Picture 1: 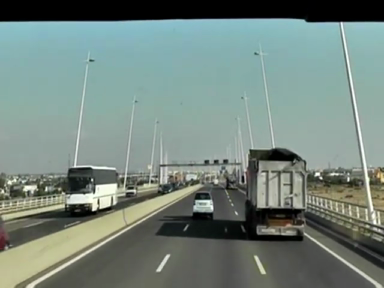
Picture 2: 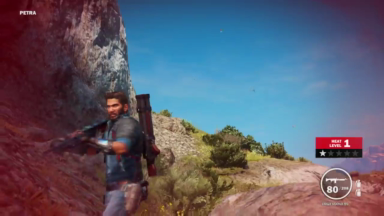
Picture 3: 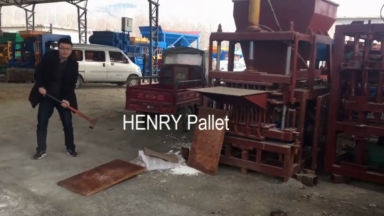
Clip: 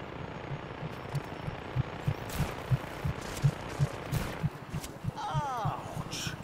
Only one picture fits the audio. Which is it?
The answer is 2